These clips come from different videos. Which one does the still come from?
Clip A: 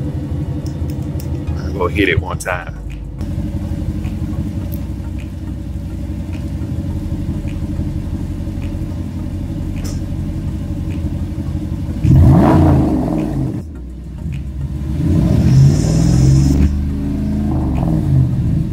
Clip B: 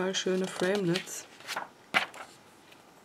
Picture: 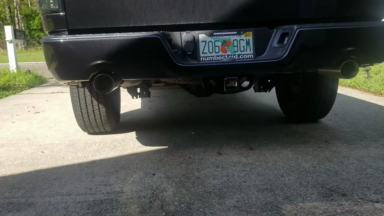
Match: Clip A